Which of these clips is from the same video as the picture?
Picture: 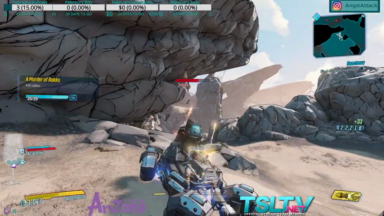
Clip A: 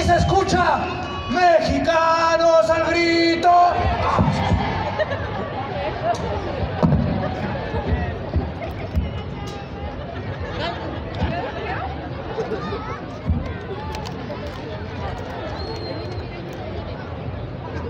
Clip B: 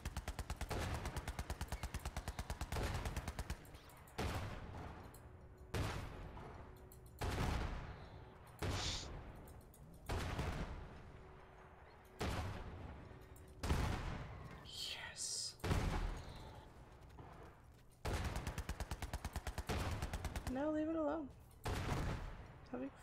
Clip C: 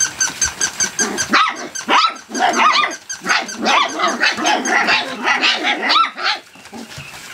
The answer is B